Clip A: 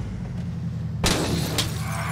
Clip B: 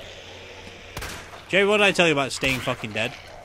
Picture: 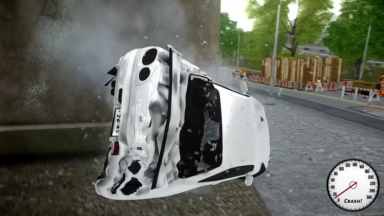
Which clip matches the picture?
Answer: A